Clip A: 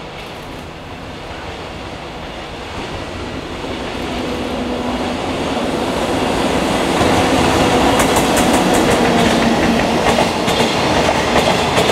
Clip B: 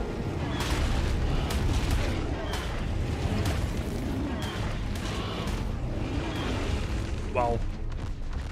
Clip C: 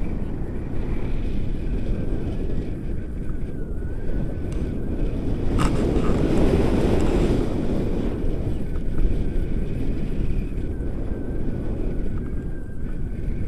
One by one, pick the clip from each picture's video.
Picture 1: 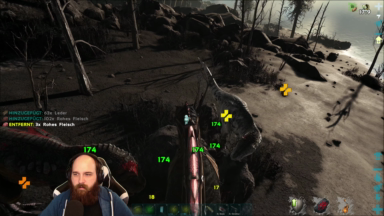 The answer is B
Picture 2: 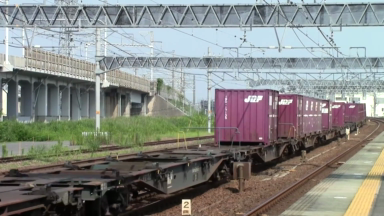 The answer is A